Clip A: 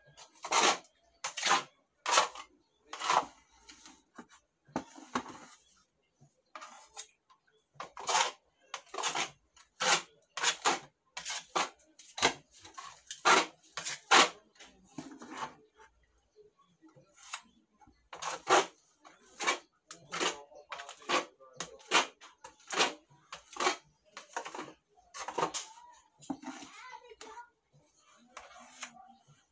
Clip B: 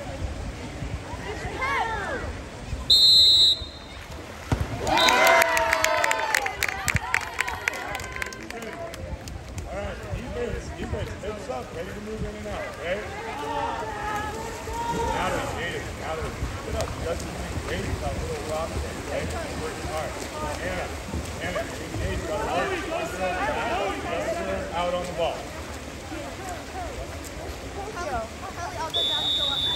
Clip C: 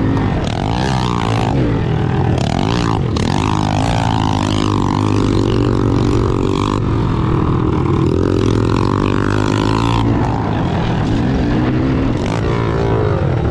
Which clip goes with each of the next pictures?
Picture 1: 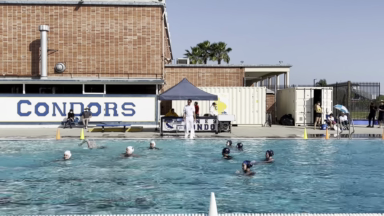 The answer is B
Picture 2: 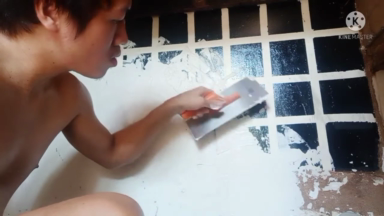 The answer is A